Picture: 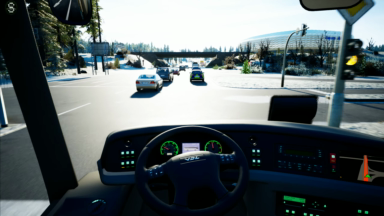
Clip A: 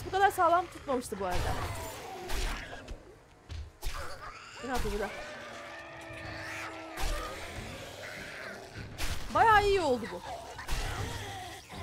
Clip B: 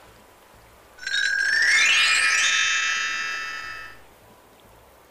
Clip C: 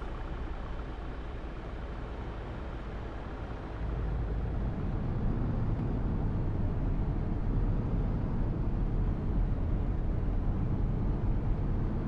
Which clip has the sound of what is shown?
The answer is C